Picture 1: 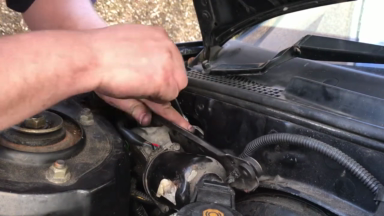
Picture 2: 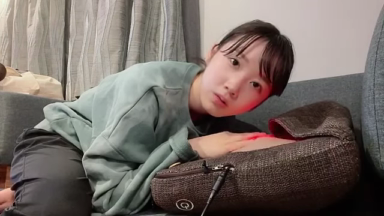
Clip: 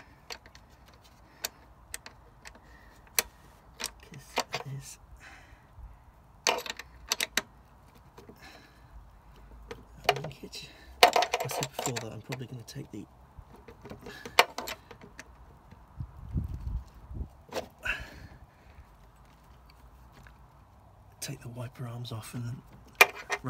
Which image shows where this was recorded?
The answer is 1